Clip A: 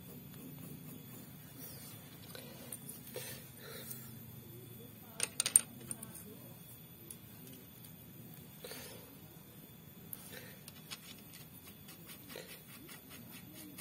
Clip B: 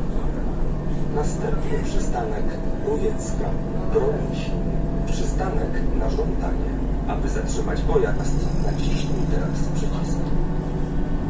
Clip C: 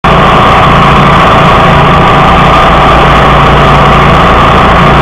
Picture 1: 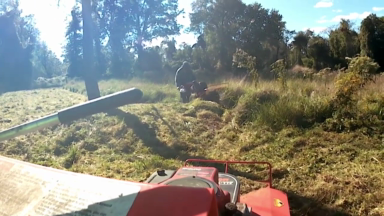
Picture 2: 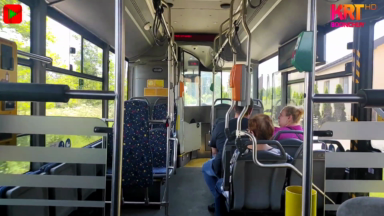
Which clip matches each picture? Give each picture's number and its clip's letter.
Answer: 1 C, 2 B